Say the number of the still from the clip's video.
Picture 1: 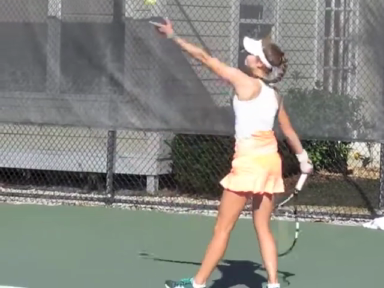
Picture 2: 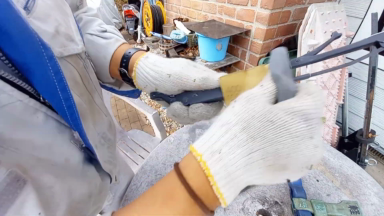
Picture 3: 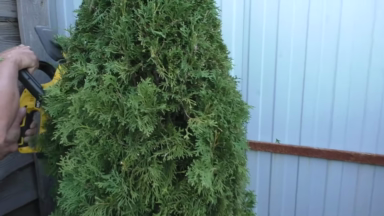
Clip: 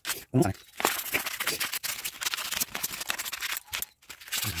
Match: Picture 2